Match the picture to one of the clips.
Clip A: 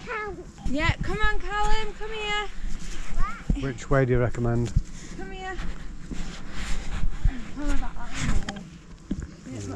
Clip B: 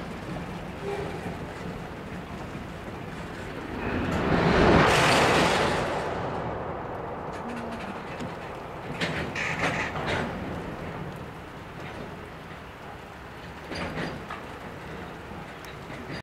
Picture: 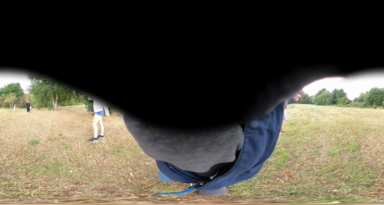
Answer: A